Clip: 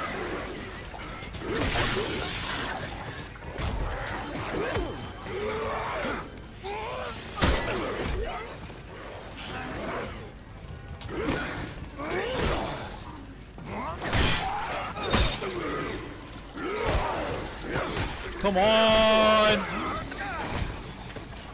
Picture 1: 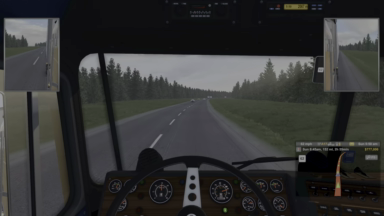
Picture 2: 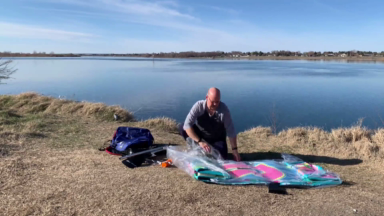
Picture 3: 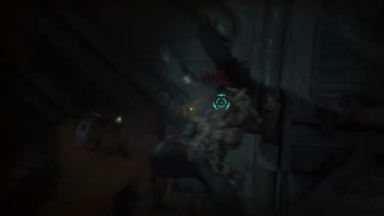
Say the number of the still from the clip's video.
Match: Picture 3